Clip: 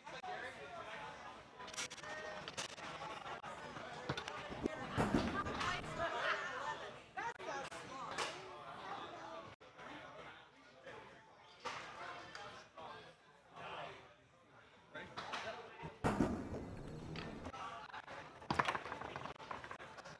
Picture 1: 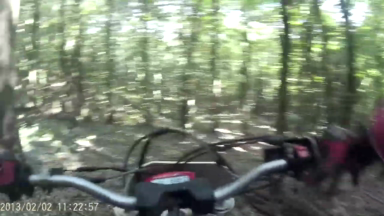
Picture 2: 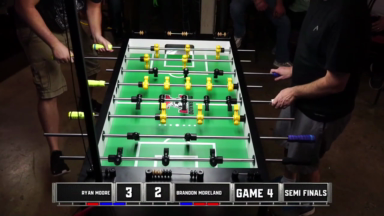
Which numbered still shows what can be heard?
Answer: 2